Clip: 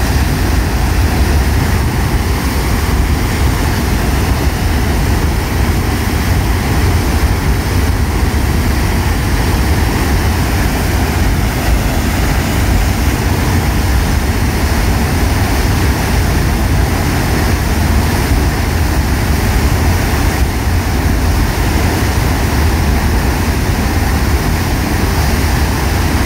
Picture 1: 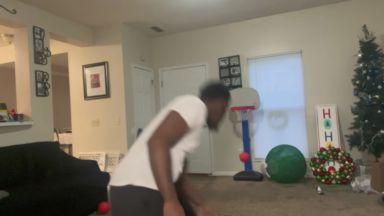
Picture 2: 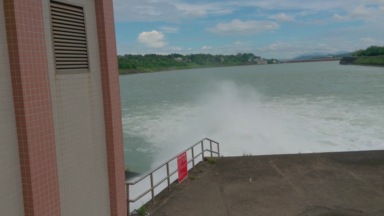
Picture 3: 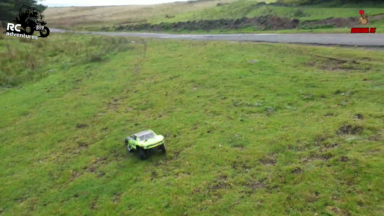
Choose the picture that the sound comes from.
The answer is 2